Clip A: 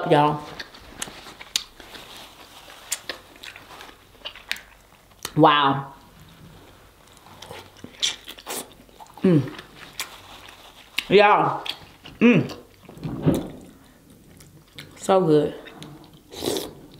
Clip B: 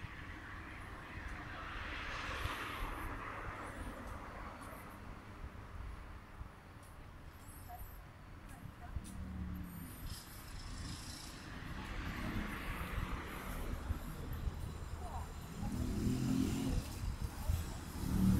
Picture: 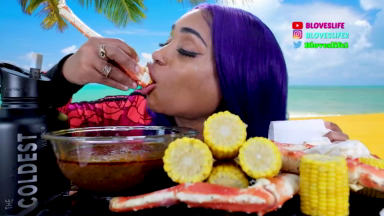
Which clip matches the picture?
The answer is A